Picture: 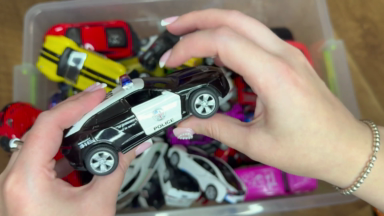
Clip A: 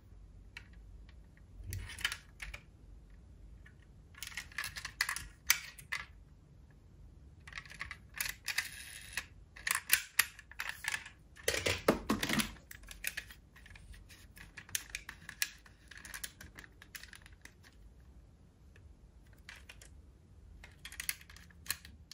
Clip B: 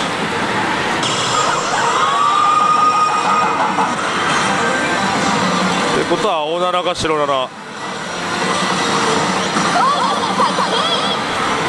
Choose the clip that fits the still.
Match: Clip A